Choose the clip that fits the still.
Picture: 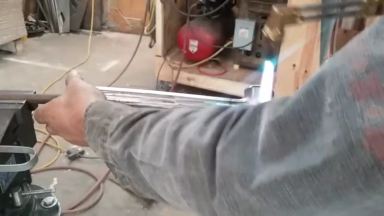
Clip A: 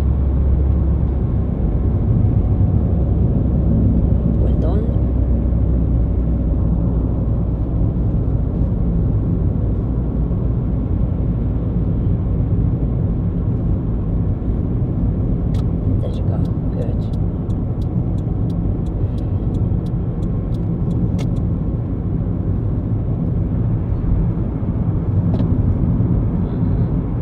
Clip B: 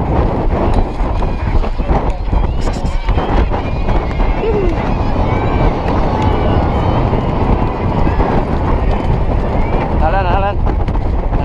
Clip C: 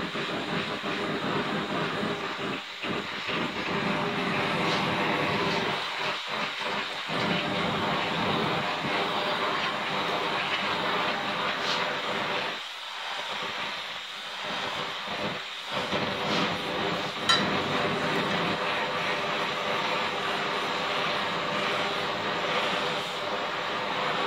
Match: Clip C